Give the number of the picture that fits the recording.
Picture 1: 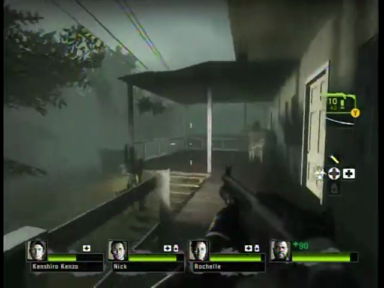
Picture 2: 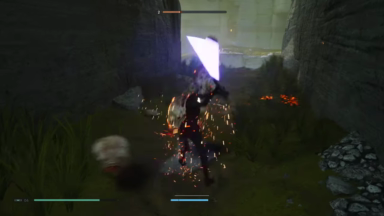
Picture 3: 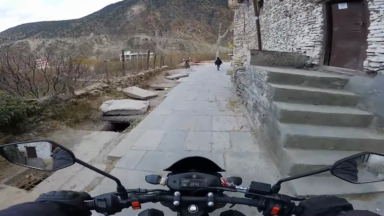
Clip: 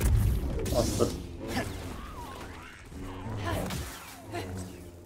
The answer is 2